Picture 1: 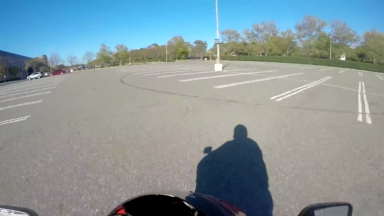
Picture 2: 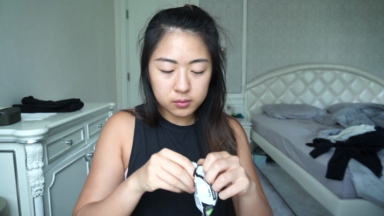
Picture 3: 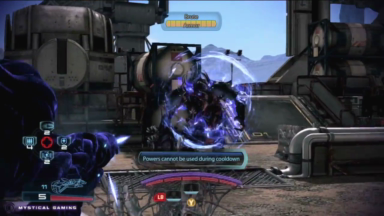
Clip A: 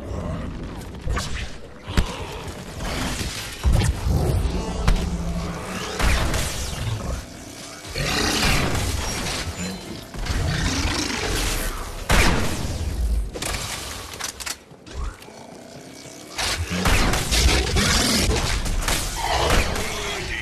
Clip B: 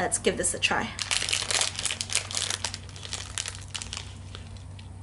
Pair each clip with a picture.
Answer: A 3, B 2